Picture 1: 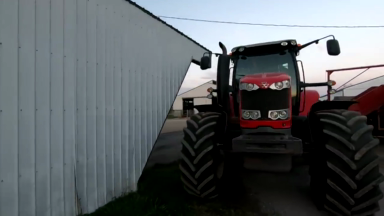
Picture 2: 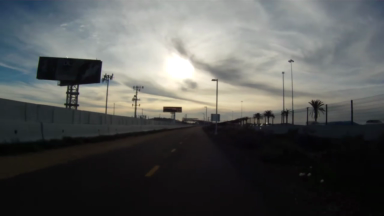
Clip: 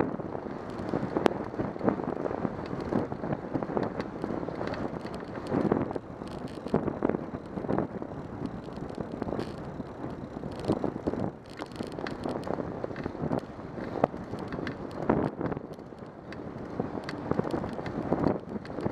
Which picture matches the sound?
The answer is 2